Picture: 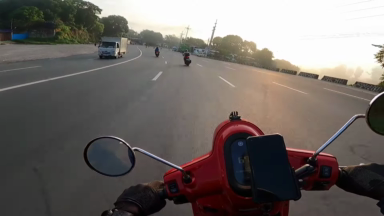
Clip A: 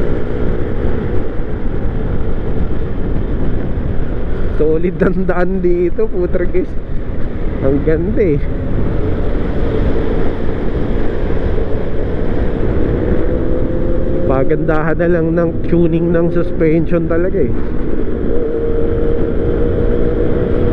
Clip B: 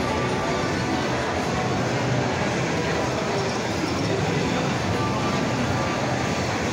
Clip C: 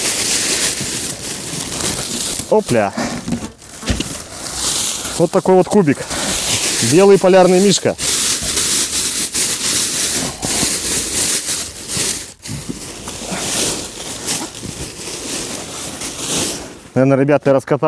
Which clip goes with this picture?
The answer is A